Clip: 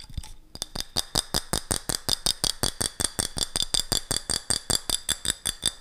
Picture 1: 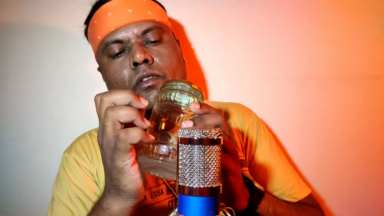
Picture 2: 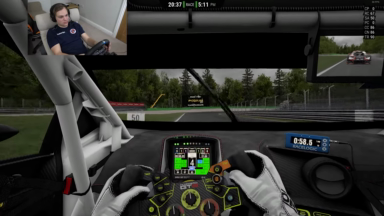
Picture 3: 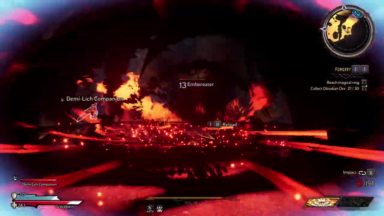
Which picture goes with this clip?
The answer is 1